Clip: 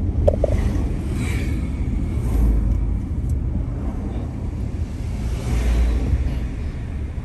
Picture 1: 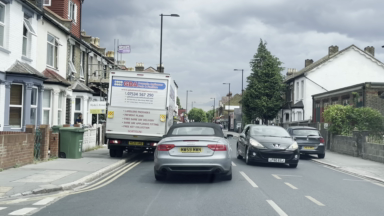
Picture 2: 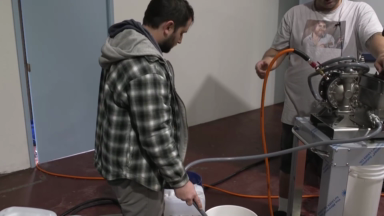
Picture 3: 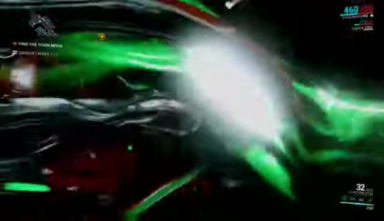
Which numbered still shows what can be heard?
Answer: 1